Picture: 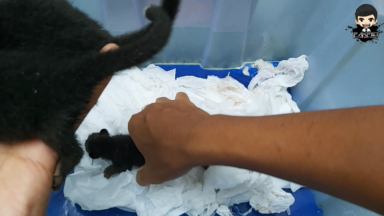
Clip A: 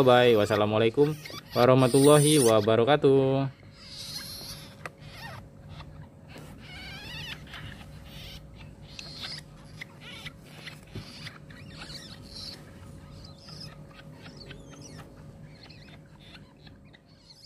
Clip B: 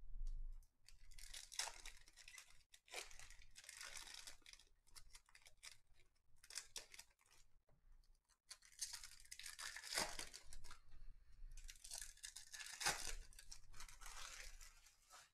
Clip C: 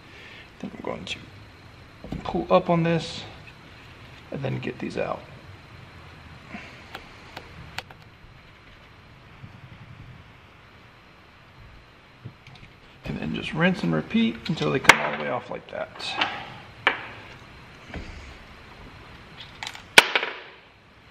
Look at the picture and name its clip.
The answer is A